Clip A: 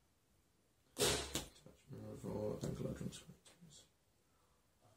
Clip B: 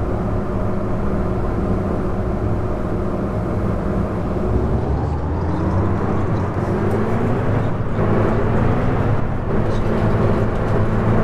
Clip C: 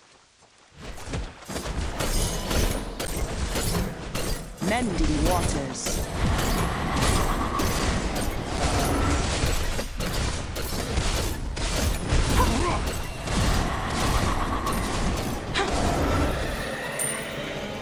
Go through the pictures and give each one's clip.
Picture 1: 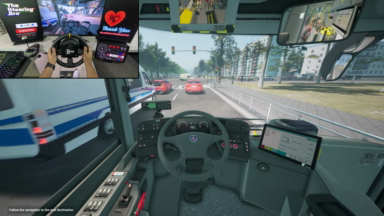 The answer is B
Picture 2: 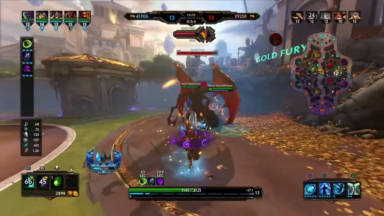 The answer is C